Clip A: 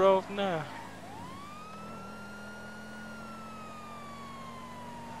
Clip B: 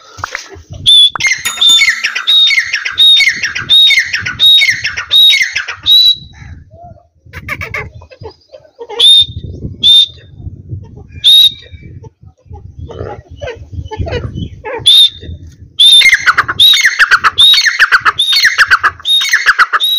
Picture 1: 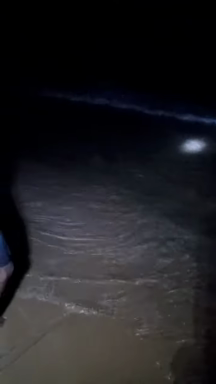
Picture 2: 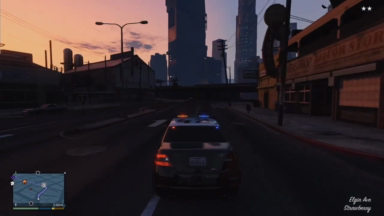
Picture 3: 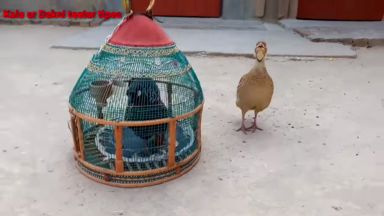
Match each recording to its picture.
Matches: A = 2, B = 3